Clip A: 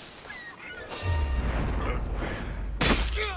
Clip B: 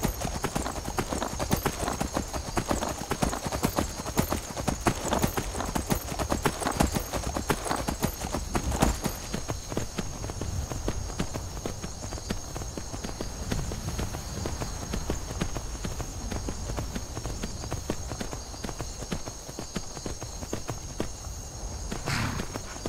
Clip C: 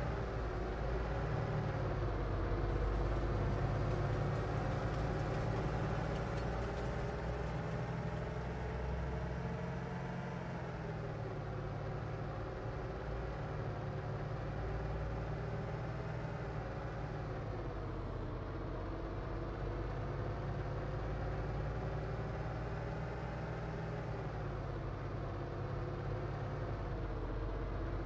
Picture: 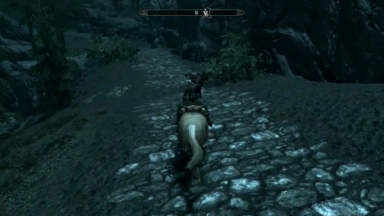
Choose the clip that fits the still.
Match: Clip B